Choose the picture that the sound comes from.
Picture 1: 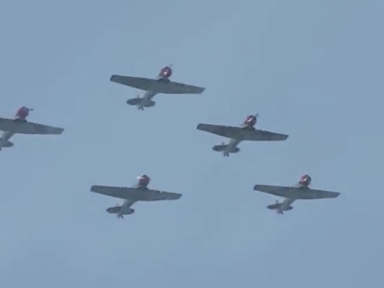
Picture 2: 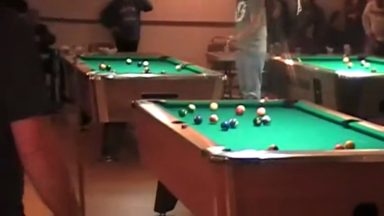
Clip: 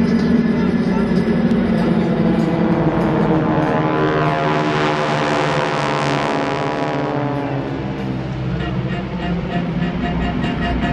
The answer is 1